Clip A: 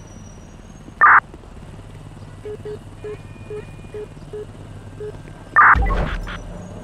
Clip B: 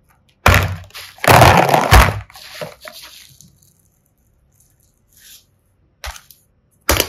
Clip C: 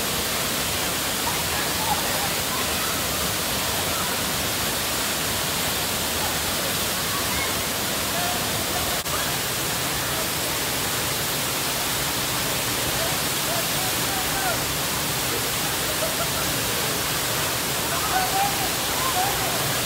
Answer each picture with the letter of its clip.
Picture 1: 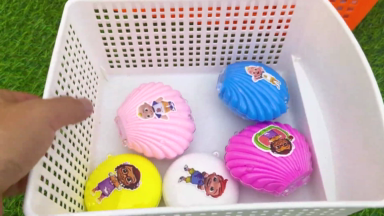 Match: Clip B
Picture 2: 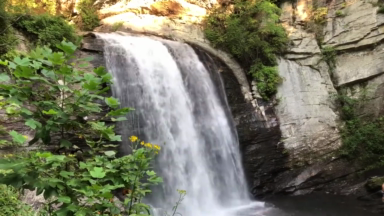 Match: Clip C